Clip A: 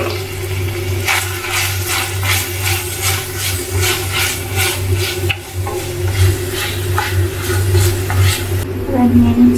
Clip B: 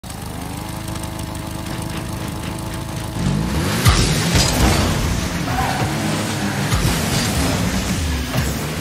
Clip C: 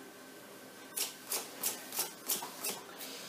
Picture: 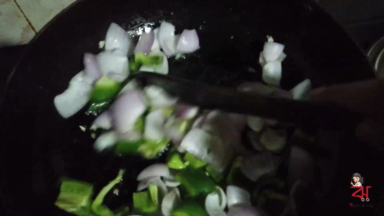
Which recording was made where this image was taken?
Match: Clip A